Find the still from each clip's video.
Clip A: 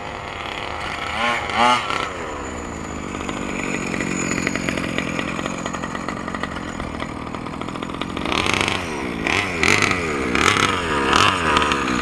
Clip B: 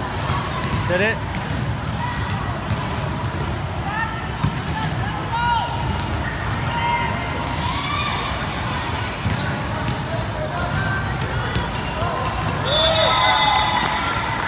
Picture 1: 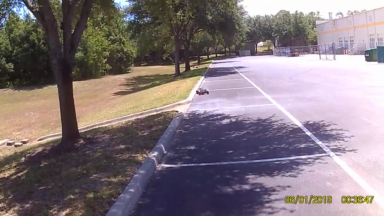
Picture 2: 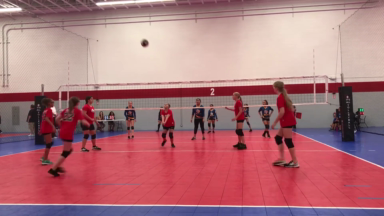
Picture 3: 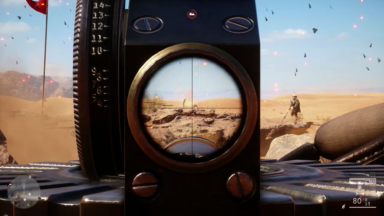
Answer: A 1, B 2